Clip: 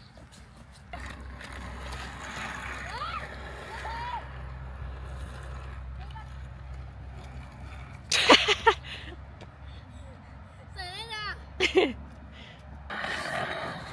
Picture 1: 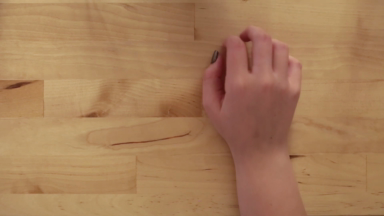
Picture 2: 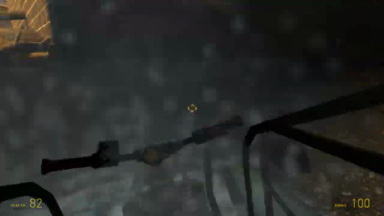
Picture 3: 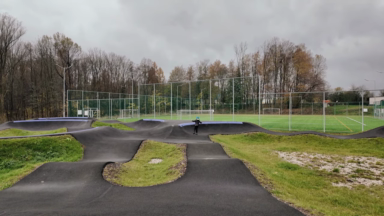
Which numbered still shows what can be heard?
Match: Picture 3